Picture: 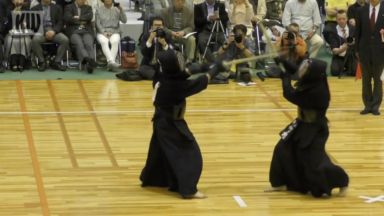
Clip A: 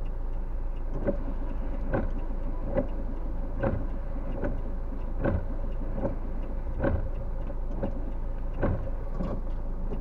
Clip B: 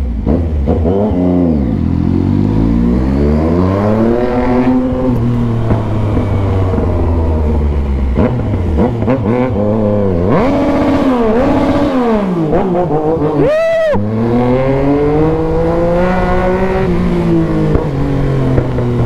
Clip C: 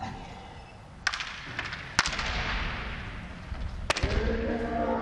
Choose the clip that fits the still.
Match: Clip C